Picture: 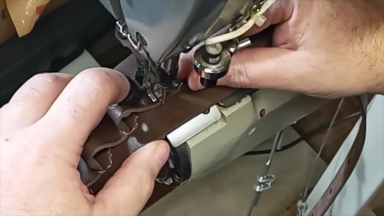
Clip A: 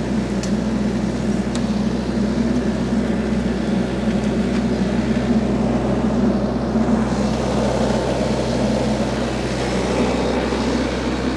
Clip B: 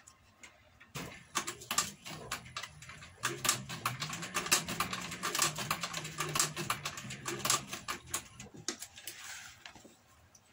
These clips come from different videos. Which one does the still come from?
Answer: B